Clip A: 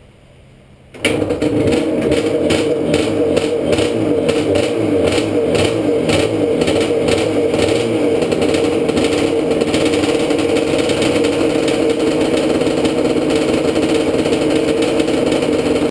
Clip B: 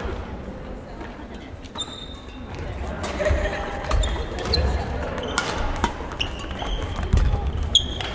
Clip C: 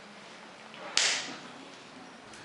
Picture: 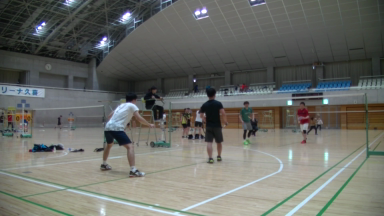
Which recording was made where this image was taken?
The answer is B